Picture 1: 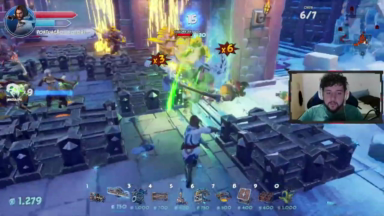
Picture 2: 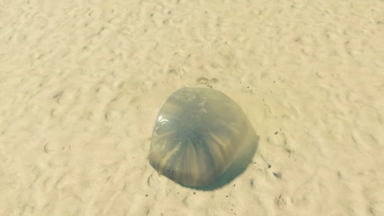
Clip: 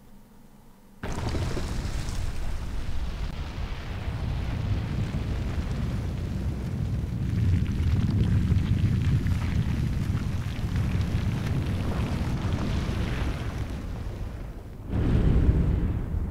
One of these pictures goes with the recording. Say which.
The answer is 2